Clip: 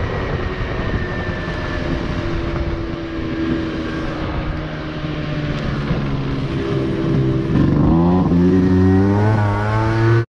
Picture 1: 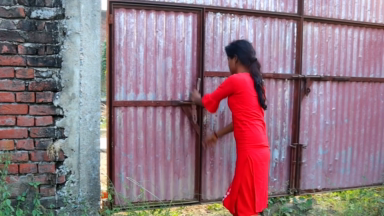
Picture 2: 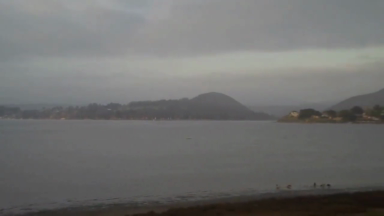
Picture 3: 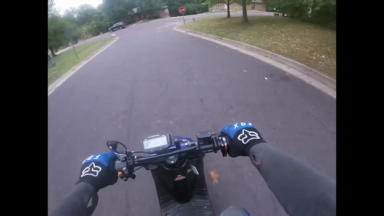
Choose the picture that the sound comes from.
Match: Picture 3